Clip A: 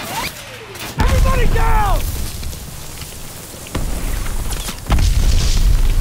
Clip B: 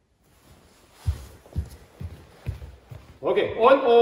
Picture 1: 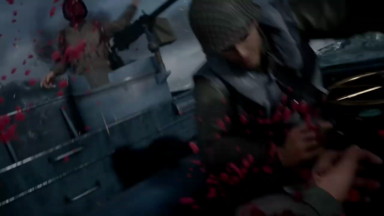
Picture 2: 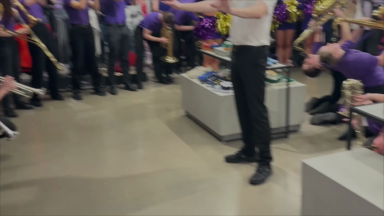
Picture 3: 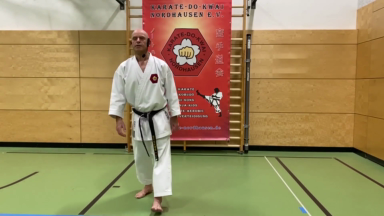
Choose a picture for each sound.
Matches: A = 1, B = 3